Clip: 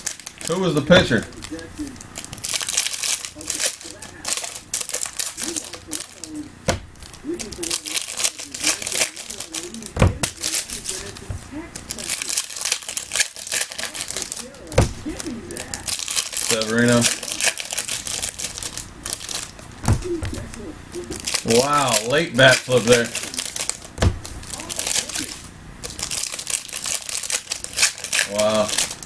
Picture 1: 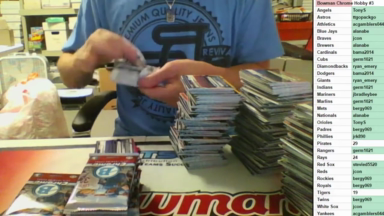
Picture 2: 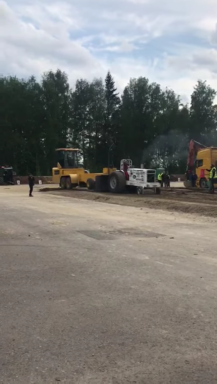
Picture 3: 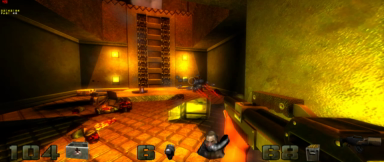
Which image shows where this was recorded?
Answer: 1